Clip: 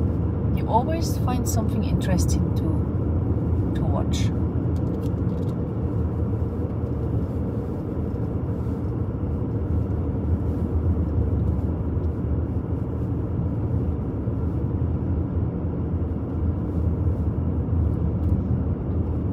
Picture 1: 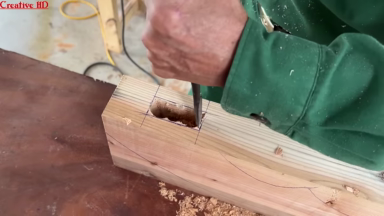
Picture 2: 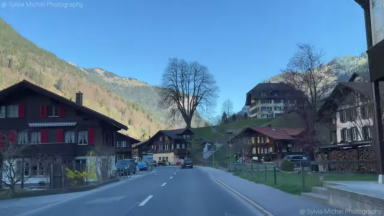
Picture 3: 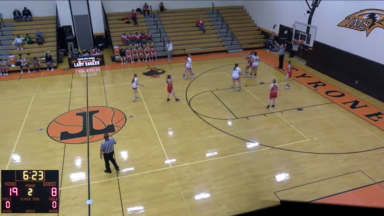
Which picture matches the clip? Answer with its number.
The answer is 2